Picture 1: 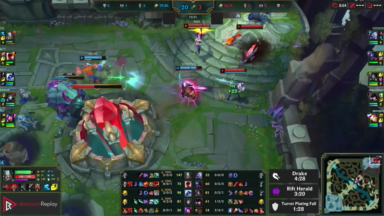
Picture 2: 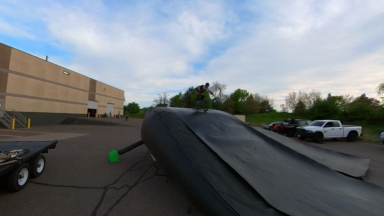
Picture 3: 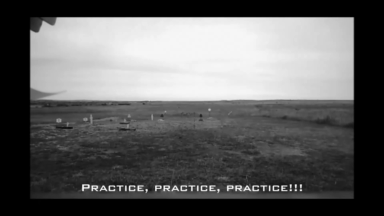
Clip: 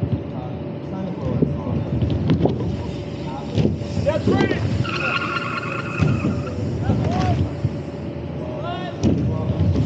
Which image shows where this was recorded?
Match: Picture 2